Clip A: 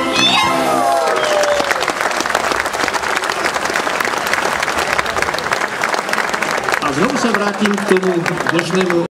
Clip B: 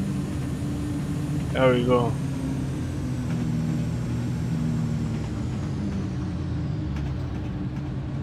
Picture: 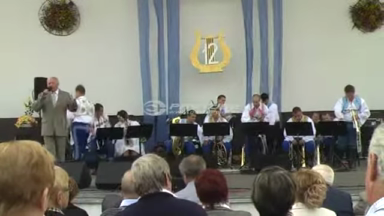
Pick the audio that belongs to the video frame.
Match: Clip A